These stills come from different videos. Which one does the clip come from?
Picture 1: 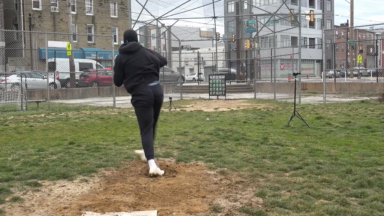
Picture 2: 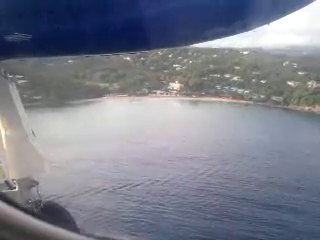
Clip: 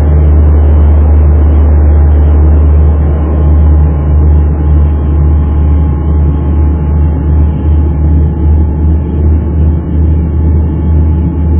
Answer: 2